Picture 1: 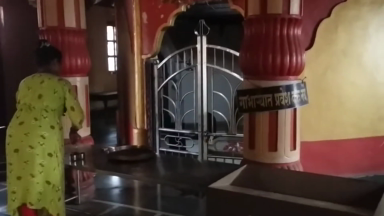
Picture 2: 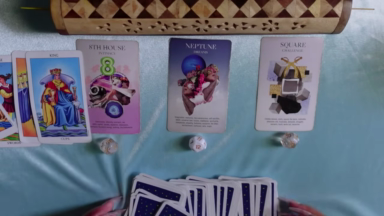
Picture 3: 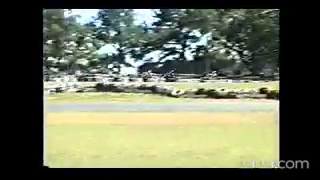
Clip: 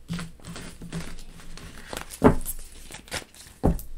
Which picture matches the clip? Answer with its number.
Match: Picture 2